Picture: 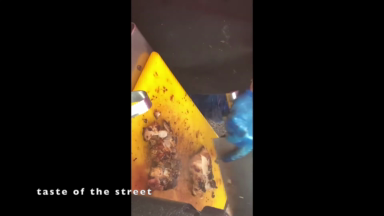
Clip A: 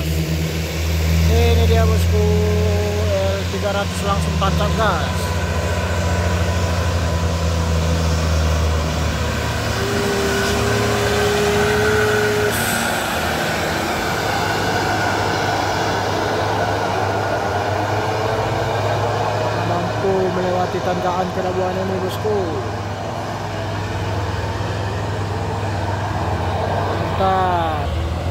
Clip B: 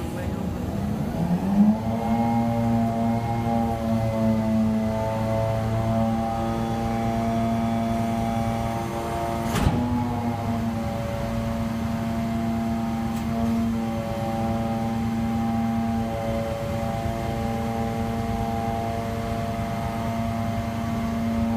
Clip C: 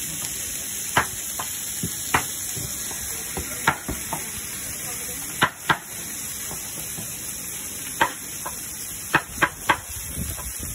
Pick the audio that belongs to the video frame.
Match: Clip C